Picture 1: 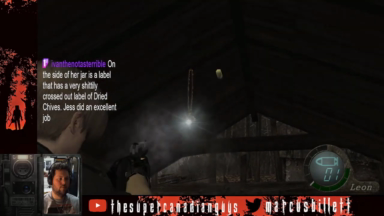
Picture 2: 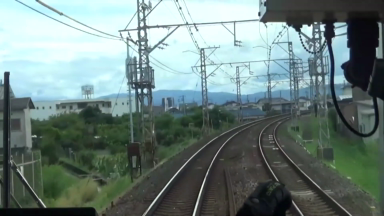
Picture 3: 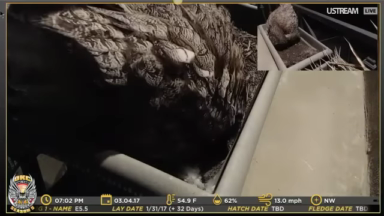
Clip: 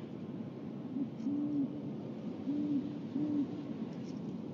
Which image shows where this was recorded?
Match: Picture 3